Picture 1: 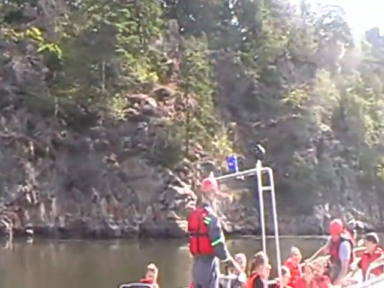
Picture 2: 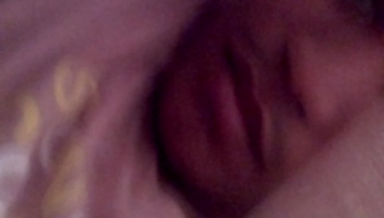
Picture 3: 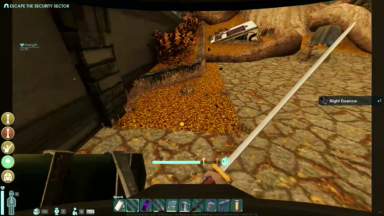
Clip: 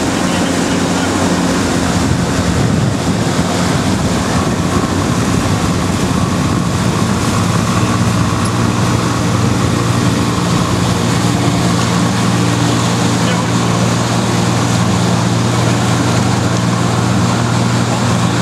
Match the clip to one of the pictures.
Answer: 1